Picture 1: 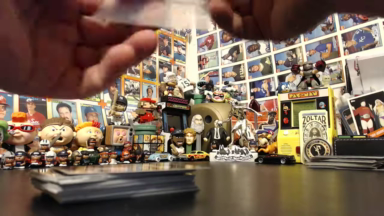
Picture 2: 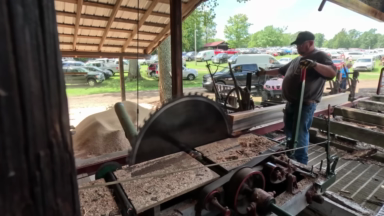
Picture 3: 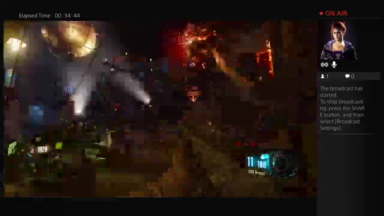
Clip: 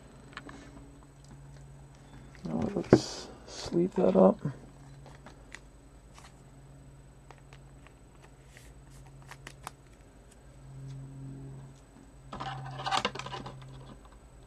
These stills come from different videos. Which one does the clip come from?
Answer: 1